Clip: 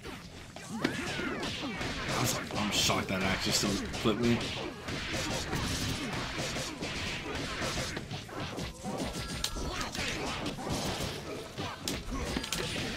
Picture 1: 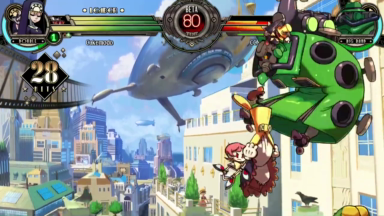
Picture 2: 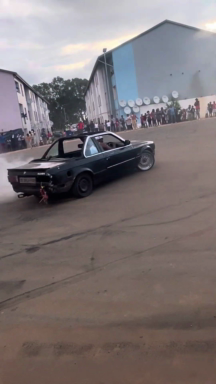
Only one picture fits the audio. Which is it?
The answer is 1